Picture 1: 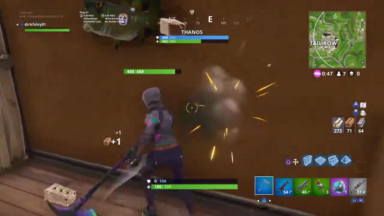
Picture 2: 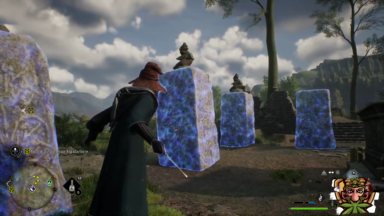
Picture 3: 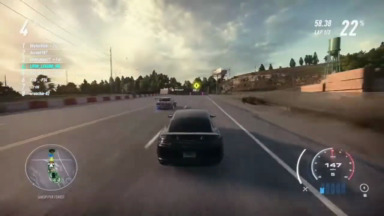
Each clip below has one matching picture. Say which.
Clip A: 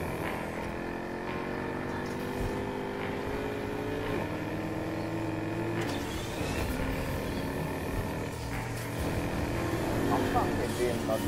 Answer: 3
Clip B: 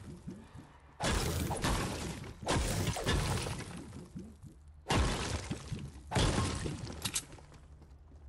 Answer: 1